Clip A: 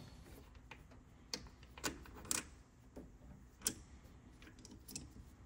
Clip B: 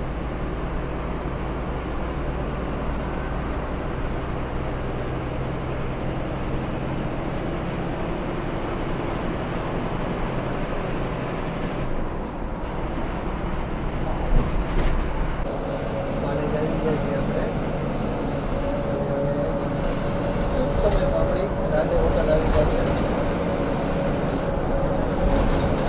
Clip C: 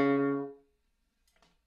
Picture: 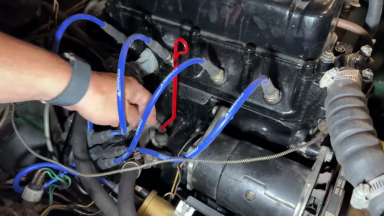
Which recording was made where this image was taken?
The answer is A